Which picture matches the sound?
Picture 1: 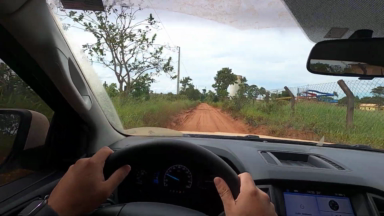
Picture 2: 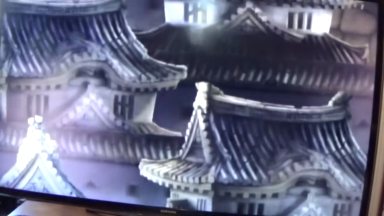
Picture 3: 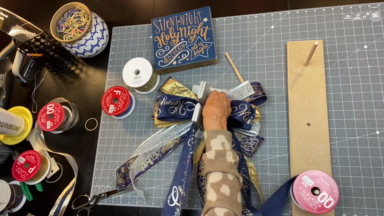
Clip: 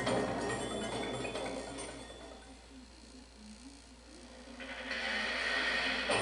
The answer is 2